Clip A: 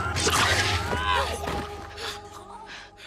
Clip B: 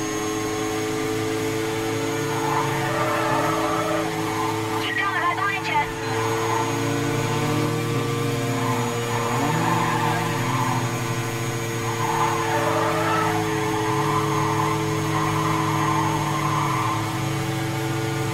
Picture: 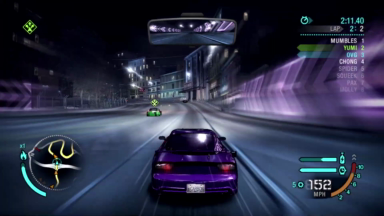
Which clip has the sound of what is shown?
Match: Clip B